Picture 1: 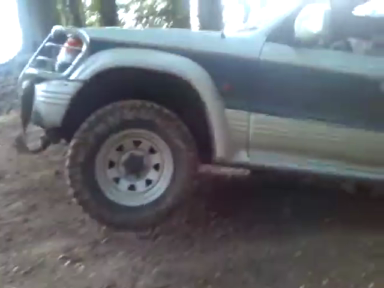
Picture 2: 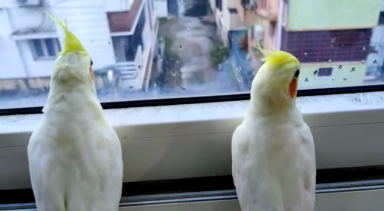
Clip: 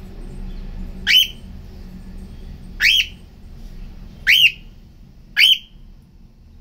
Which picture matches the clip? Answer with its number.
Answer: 2